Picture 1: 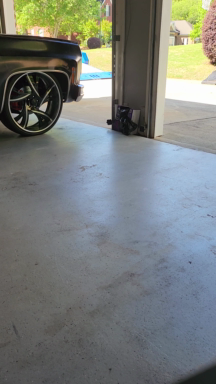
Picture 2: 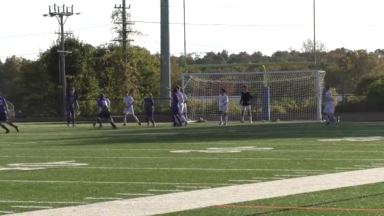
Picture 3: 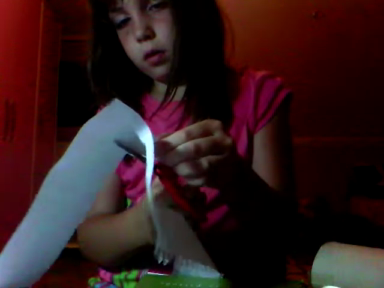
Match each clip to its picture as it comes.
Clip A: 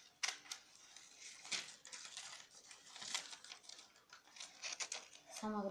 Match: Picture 3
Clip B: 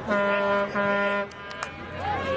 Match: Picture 2